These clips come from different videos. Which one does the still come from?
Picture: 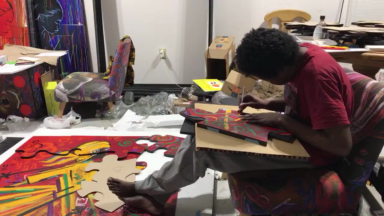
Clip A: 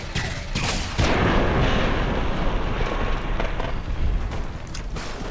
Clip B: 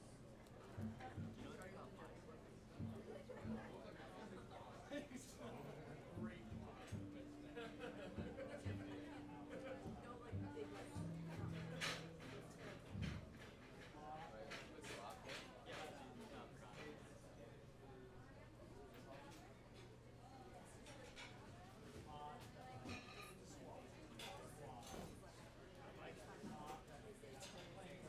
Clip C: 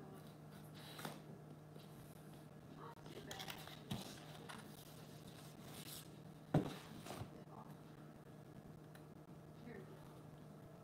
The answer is C